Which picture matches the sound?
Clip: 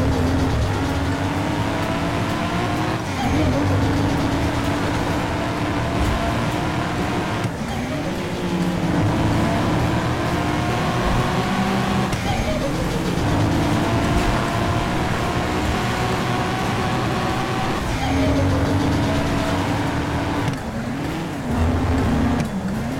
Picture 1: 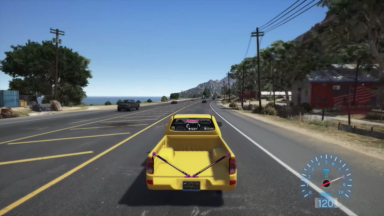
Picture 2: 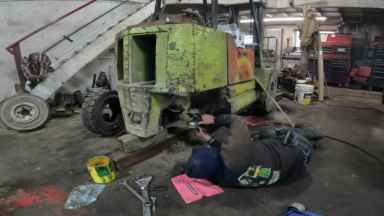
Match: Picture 1